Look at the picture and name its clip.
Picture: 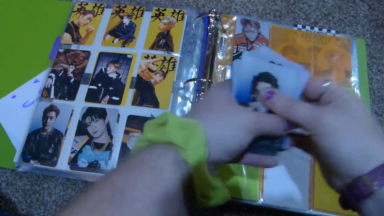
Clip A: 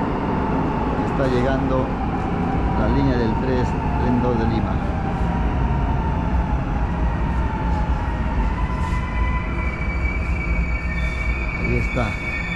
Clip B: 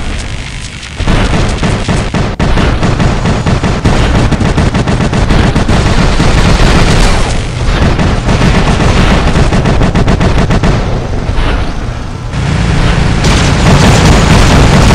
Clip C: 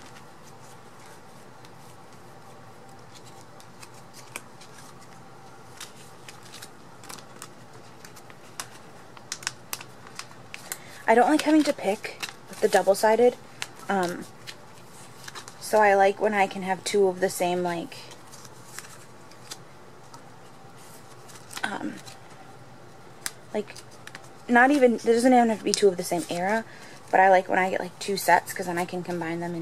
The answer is C